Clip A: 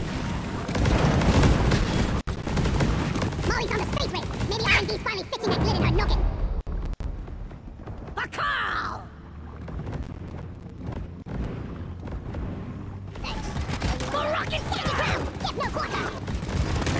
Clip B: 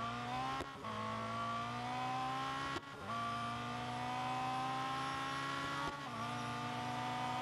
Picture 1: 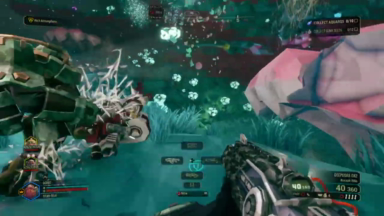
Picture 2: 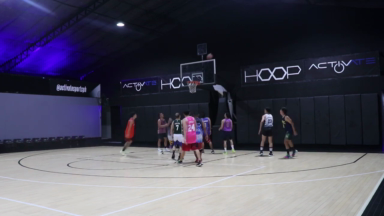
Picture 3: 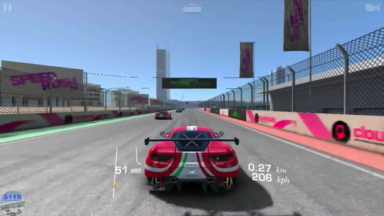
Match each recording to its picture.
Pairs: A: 1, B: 3